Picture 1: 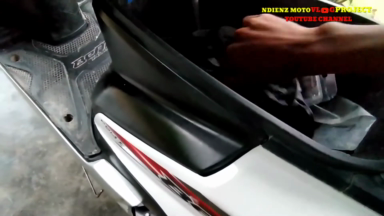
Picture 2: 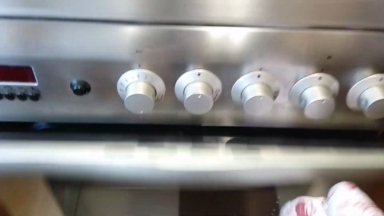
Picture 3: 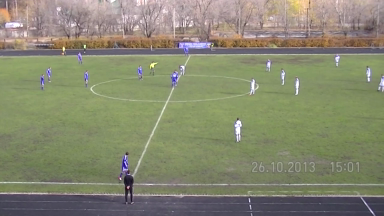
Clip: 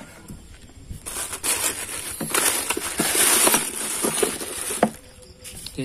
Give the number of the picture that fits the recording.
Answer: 1